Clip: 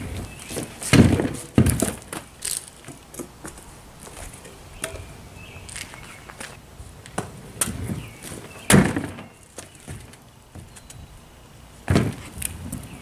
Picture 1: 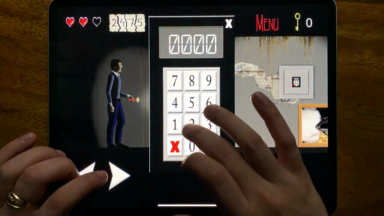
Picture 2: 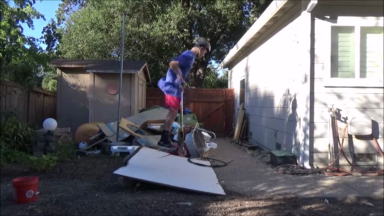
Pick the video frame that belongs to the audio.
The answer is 2